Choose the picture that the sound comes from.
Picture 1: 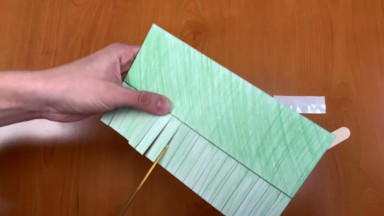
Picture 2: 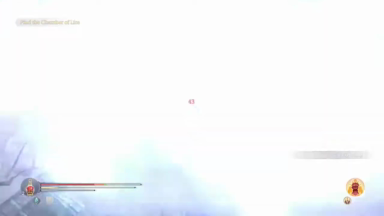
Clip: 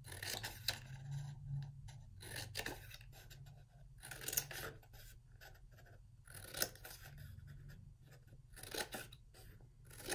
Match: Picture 1